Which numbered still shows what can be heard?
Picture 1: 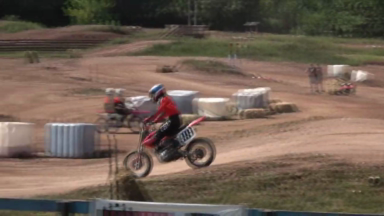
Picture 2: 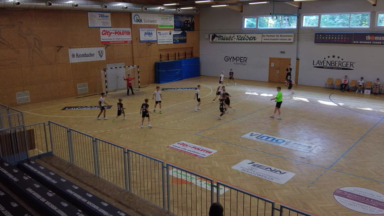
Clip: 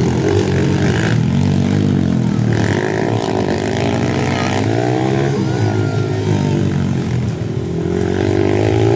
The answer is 1